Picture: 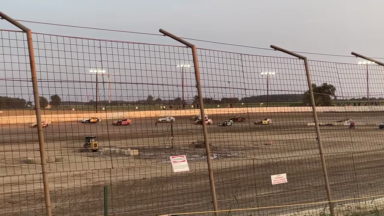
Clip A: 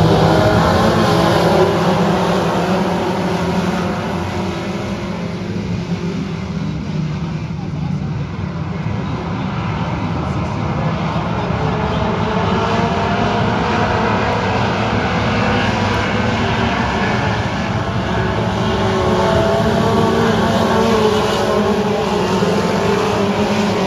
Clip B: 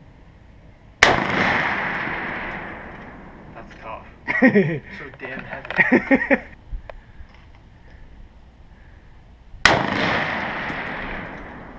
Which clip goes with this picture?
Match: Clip A